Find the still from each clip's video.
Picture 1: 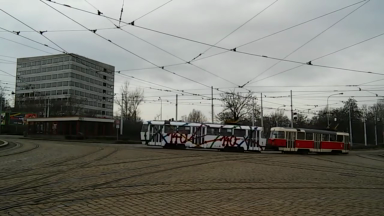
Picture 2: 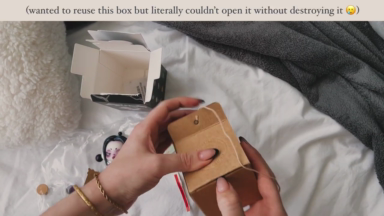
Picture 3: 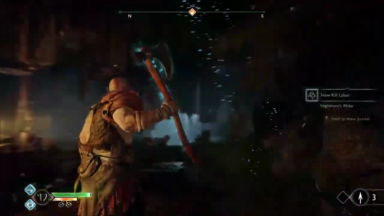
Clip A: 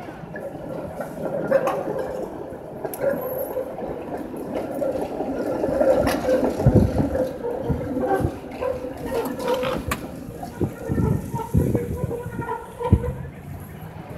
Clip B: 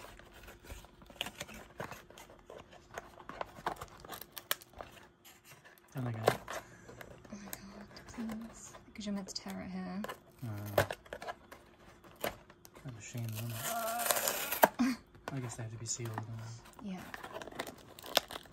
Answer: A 1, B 2